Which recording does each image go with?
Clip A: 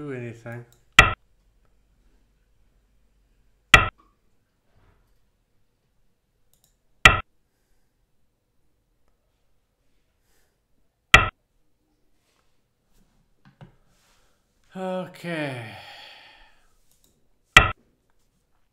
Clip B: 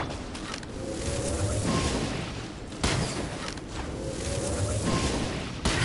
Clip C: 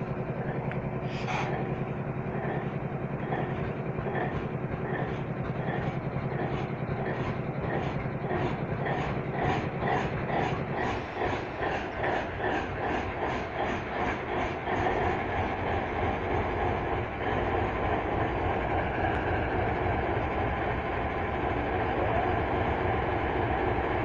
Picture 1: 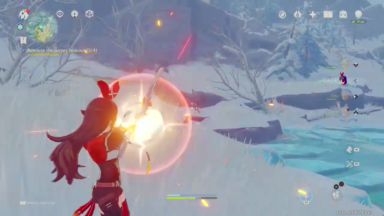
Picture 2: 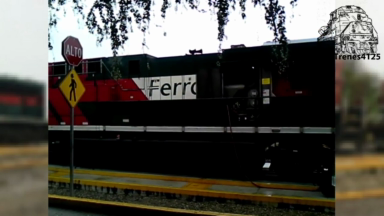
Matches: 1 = B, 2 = C